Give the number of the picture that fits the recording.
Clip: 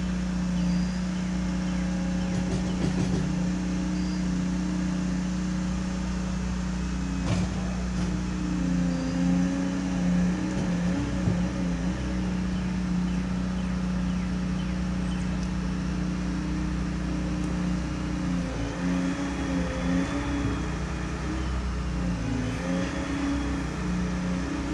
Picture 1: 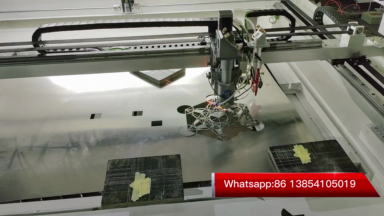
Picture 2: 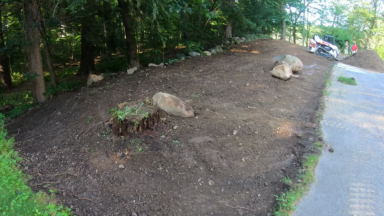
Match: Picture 2